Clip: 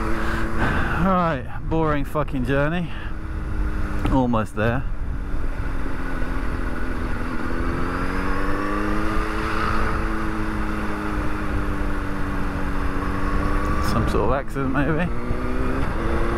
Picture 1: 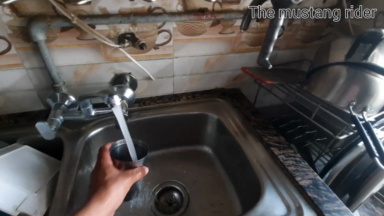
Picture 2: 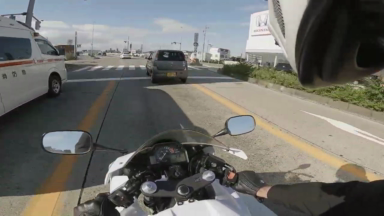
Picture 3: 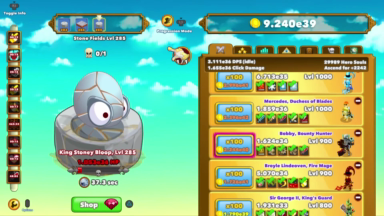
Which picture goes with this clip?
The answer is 2